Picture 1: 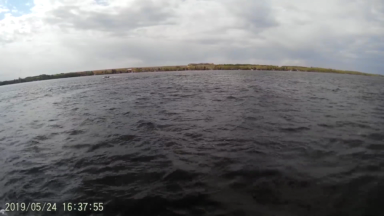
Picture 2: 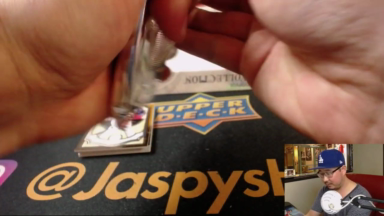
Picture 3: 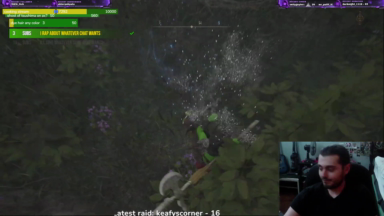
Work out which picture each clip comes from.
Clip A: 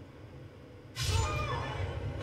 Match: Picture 3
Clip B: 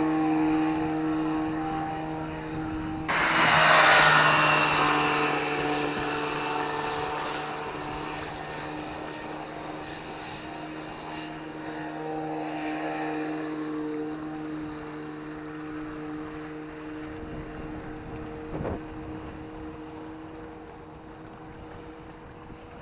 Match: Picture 1